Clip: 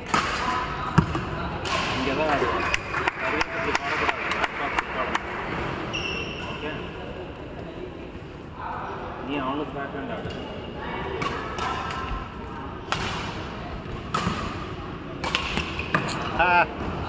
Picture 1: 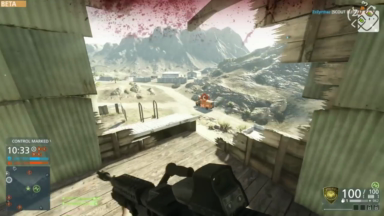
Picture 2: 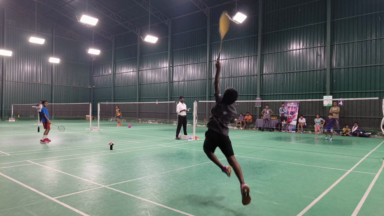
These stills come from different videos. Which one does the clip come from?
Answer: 2